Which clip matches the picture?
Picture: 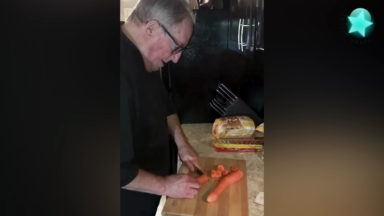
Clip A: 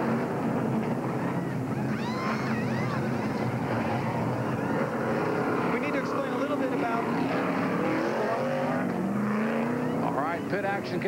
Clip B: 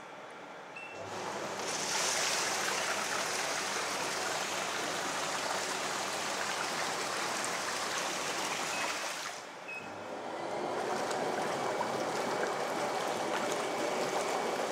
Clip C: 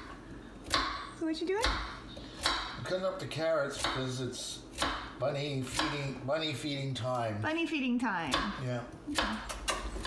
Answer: C